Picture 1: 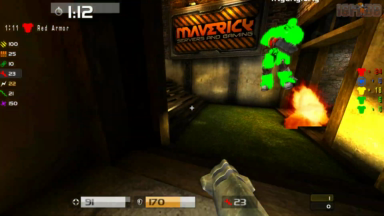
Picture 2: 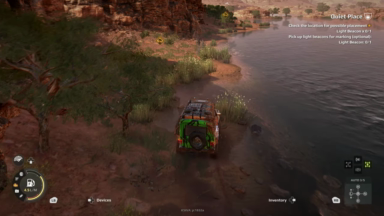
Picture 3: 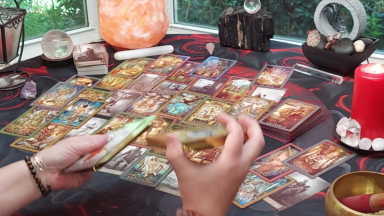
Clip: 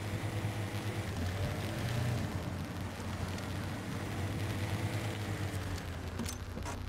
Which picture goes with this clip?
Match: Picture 2